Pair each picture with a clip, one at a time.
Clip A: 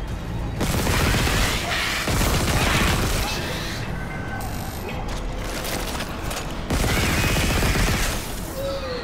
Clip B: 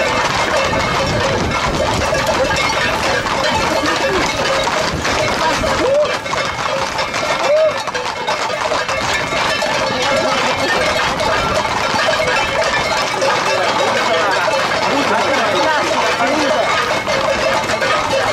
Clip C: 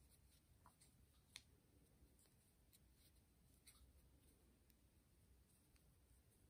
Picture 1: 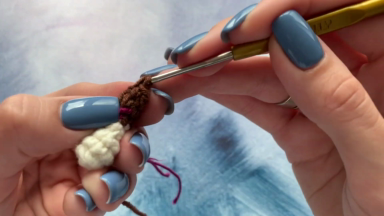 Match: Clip C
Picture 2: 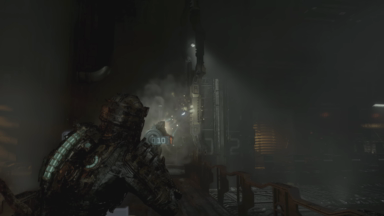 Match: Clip A